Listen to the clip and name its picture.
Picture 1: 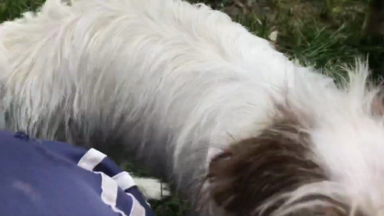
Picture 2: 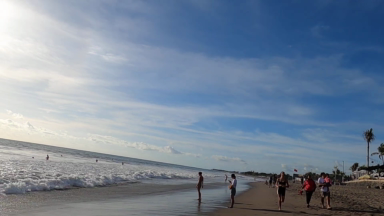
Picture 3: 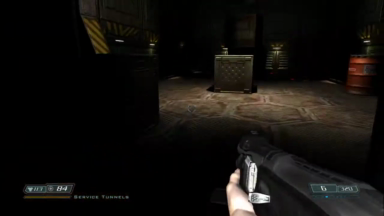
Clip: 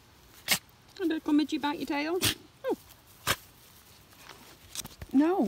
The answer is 1